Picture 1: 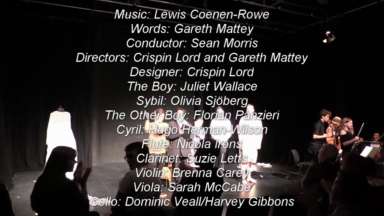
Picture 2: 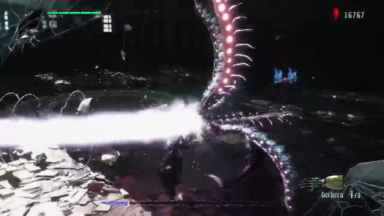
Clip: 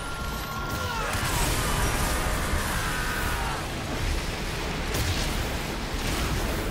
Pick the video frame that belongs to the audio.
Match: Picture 2